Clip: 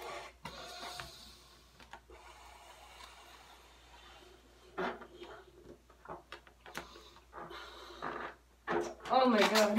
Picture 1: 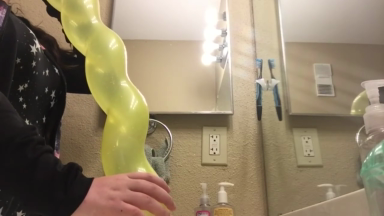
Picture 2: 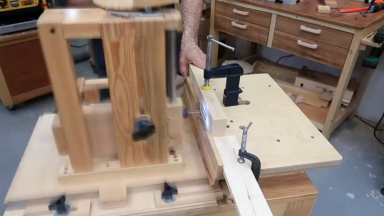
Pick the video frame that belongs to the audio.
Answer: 1